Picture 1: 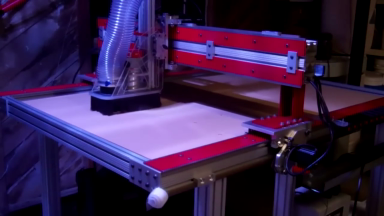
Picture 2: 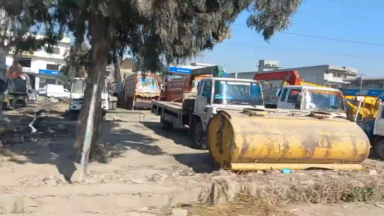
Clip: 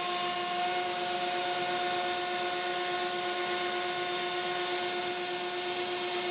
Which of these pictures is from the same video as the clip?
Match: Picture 1